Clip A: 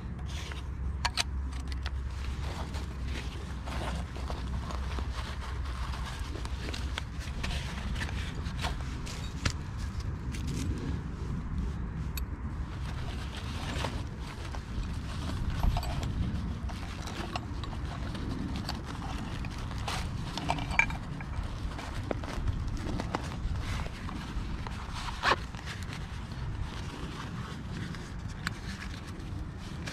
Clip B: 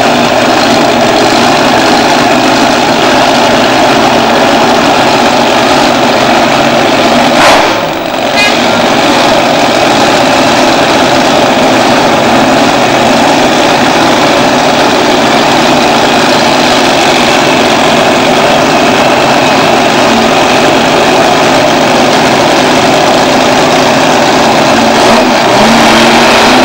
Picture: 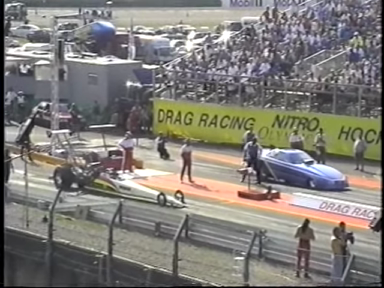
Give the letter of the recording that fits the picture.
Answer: B